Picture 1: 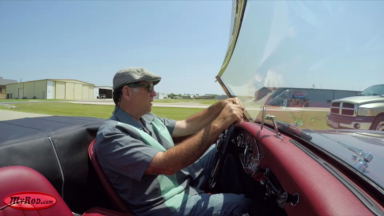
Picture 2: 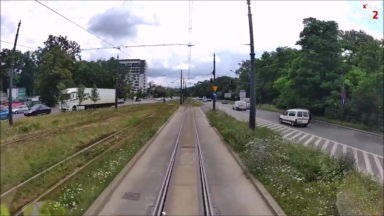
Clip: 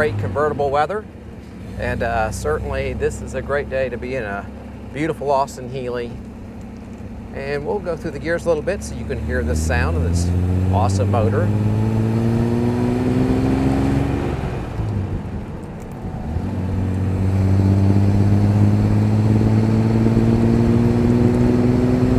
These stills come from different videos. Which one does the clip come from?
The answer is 1